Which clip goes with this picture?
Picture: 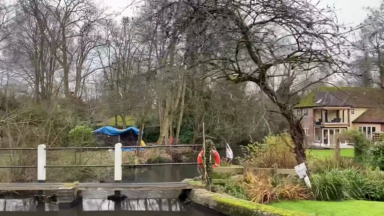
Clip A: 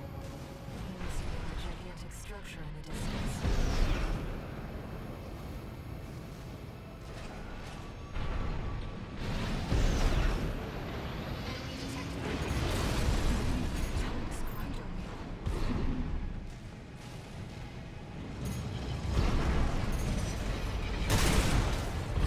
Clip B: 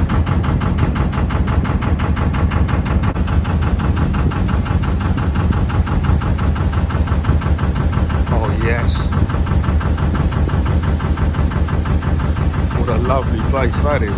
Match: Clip B